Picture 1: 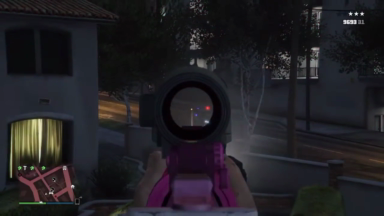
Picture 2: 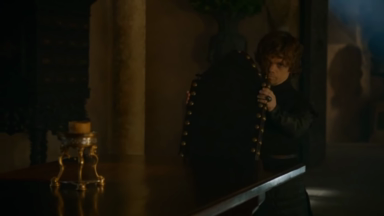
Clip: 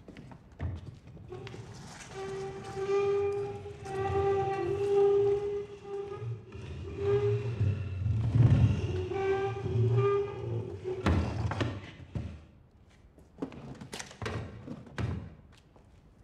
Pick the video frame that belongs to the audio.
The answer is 2